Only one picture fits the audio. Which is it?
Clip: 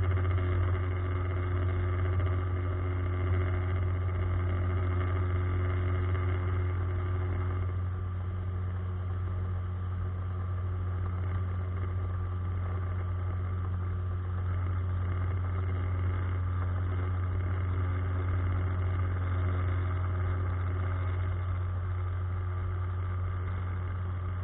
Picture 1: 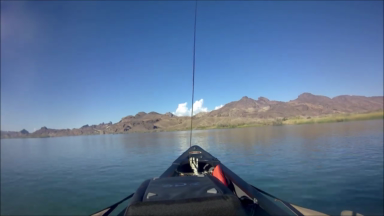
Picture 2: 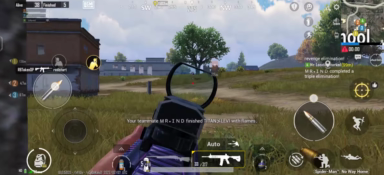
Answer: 1